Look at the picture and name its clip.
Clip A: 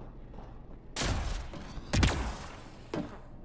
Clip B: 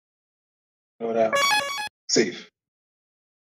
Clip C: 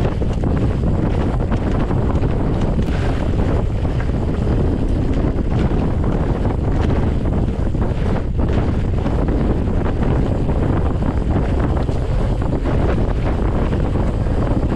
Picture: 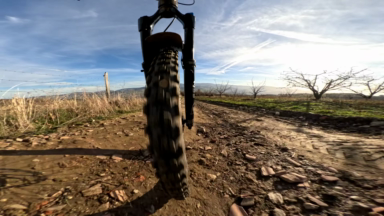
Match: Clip C